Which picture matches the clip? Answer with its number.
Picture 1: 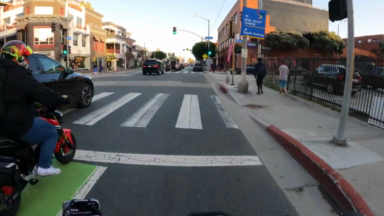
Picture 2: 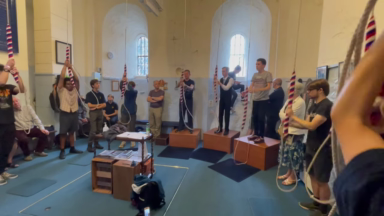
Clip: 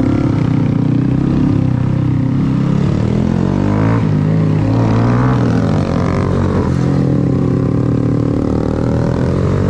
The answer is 1